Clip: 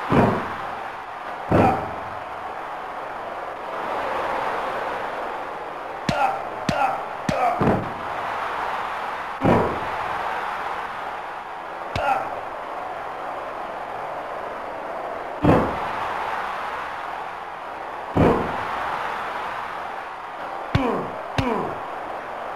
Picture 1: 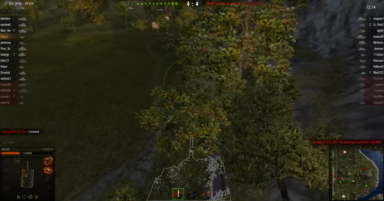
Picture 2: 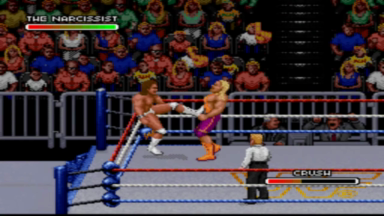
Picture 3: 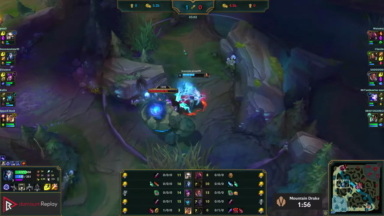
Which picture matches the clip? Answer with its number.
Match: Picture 2